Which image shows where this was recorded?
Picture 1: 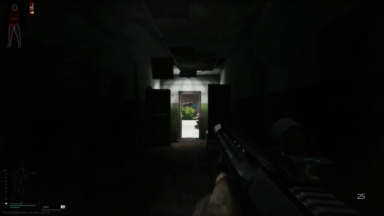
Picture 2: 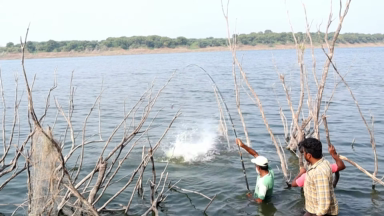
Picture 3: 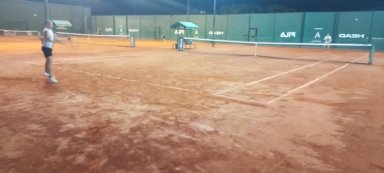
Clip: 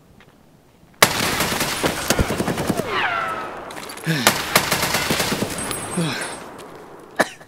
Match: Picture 1